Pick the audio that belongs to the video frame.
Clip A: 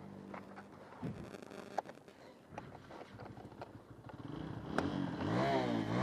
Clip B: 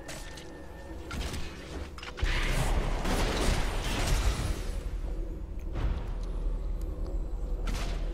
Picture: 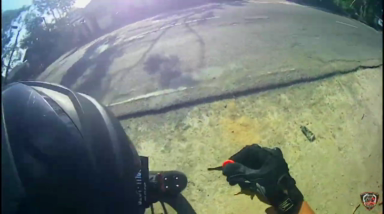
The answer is A